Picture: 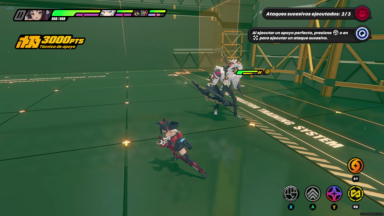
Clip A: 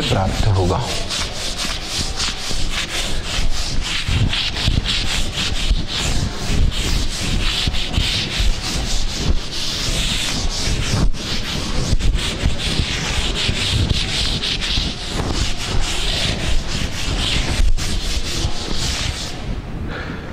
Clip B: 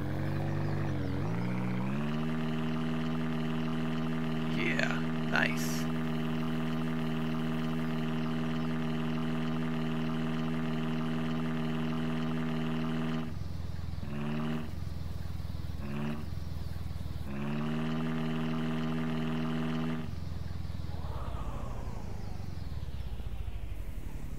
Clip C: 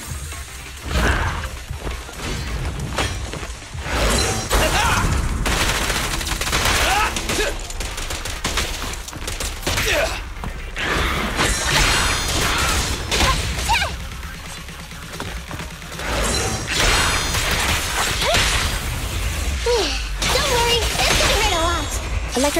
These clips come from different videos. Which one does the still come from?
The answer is C